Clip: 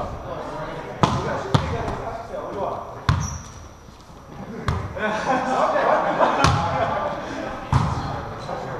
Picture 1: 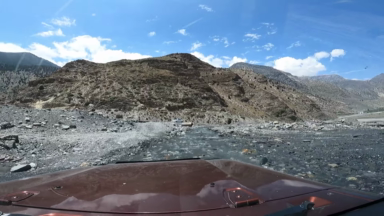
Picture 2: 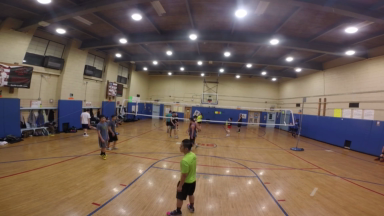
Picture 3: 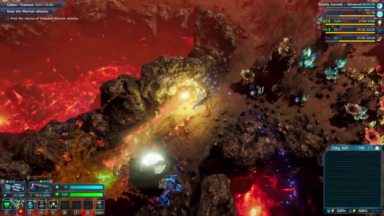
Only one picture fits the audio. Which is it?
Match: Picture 2